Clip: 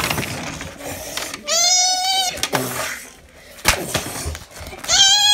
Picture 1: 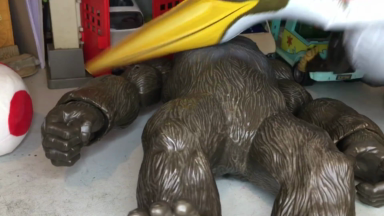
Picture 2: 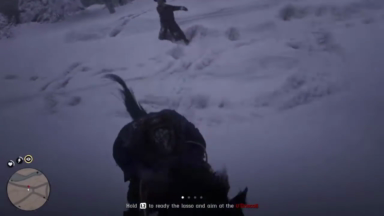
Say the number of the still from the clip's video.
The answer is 1